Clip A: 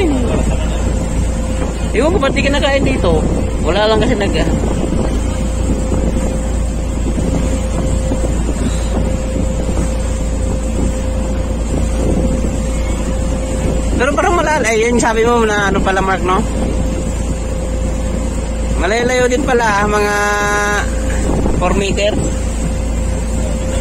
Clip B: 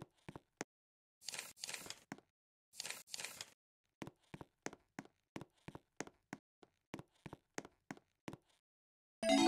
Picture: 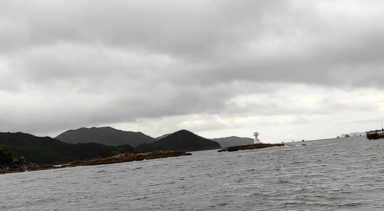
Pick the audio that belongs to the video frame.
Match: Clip A